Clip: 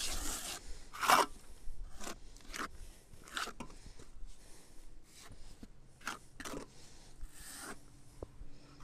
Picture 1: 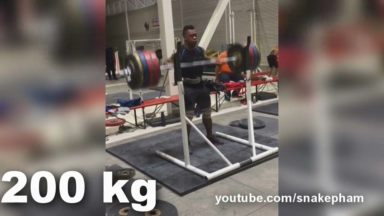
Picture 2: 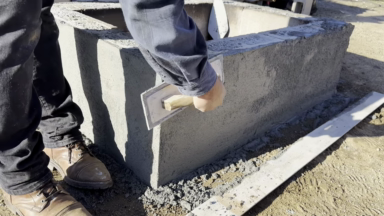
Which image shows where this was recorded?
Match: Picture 2